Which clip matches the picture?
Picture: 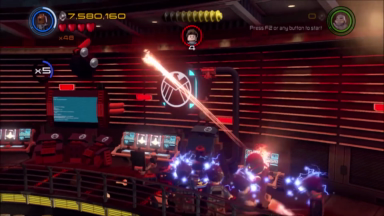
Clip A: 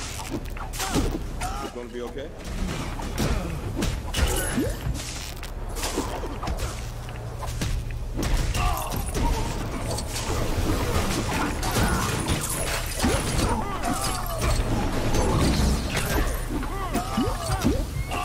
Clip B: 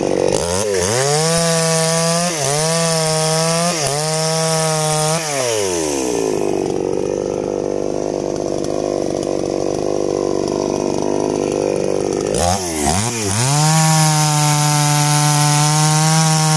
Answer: A